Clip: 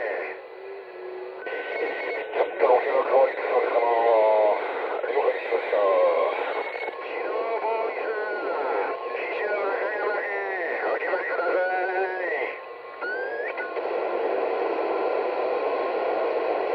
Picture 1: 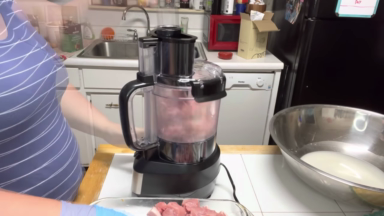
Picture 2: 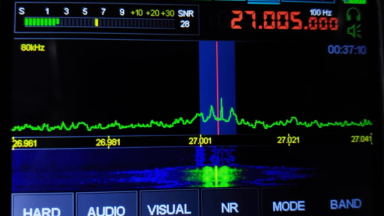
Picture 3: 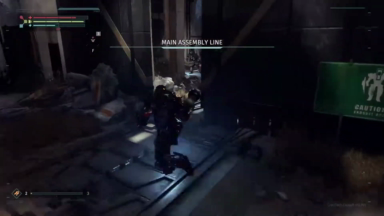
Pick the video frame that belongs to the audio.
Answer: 2